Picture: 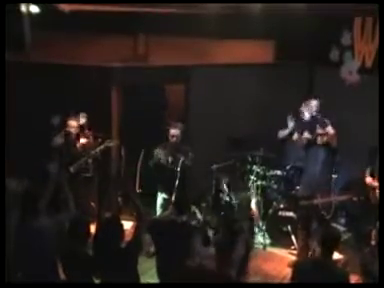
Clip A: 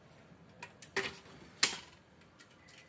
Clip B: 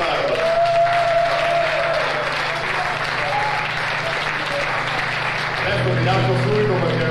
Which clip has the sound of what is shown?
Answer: B